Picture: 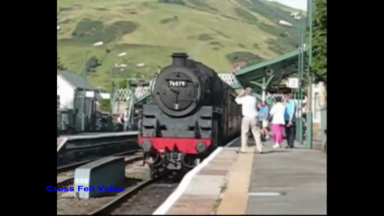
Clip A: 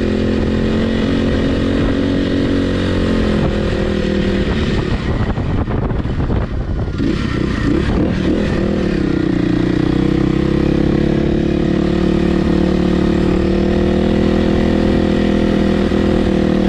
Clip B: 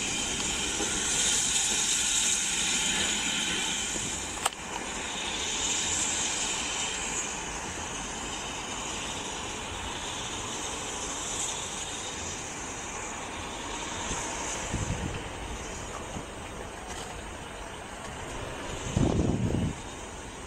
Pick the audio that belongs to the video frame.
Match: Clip B